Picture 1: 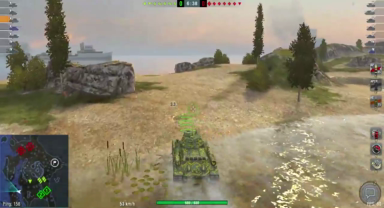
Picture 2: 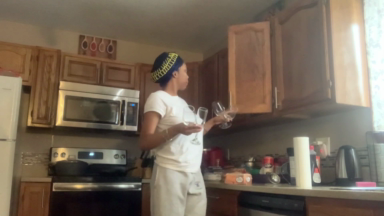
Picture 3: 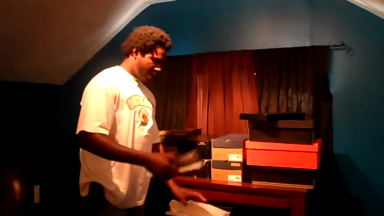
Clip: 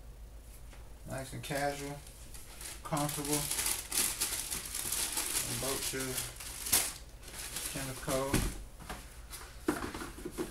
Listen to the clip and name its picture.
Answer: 3